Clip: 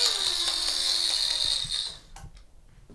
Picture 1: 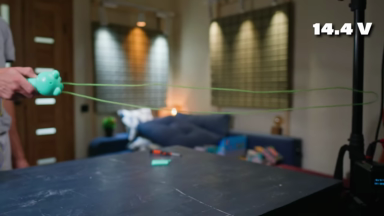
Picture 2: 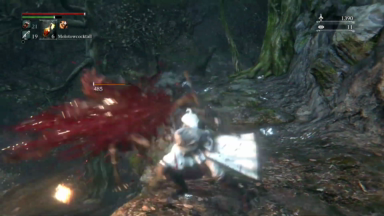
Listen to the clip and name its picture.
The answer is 1